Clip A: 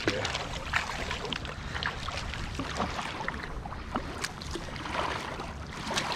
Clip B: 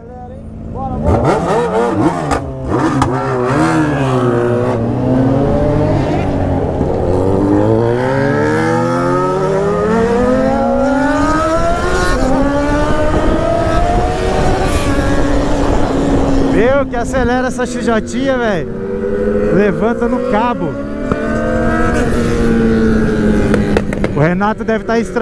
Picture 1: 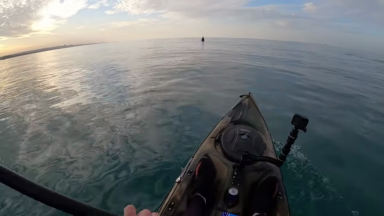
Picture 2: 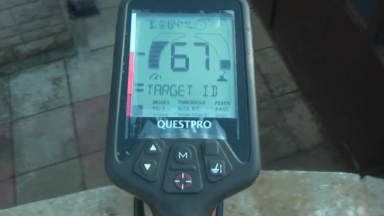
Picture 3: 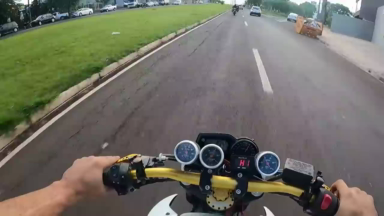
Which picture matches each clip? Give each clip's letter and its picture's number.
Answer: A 1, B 3